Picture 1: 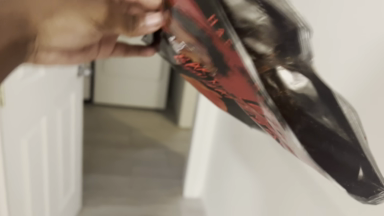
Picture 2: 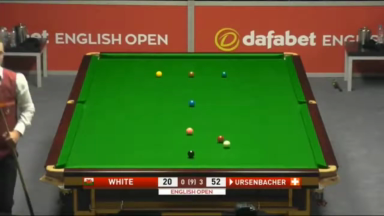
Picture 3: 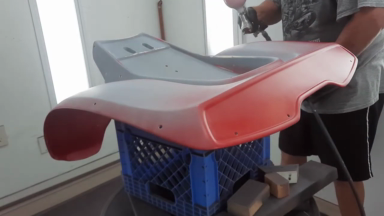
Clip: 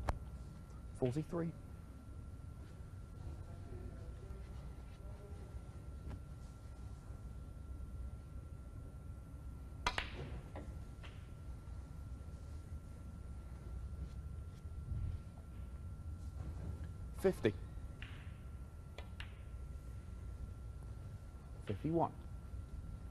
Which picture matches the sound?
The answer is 2